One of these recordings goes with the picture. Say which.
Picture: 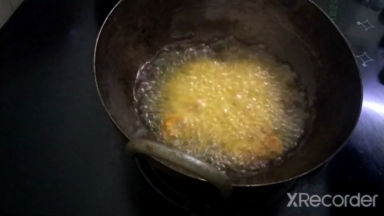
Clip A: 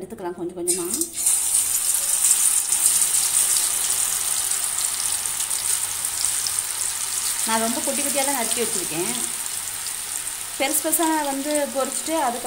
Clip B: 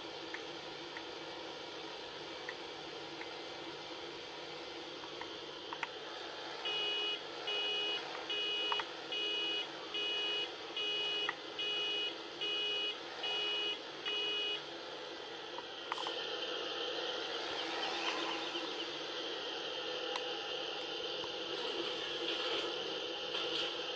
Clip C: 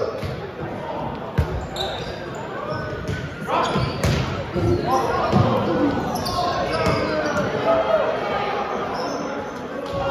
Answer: A